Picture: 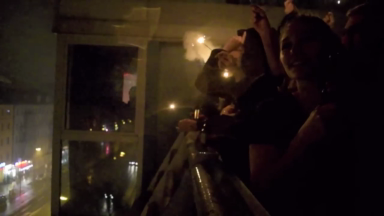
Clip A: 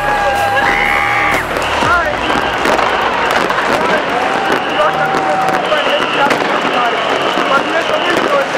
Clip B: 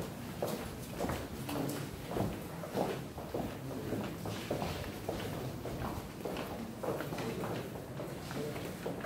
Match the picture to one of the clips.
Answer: A